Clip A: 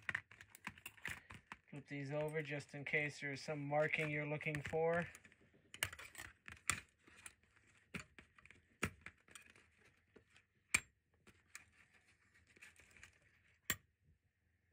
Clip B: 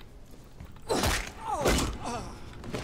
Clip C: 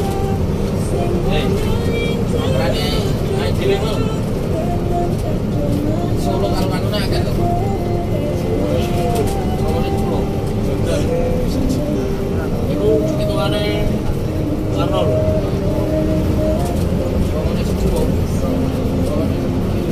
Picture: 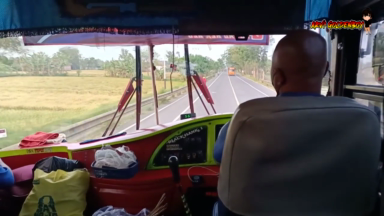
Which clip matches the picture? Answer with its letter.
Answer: C